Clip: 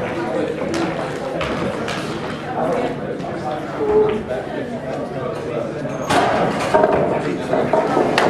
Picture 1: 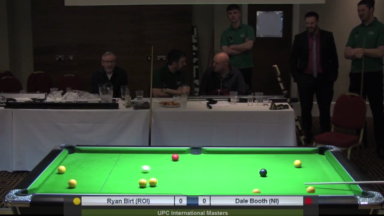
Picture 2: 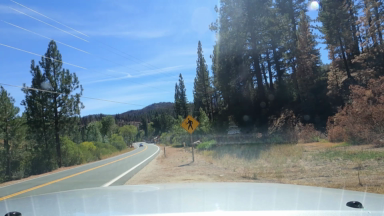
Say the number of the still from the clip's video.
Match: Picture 1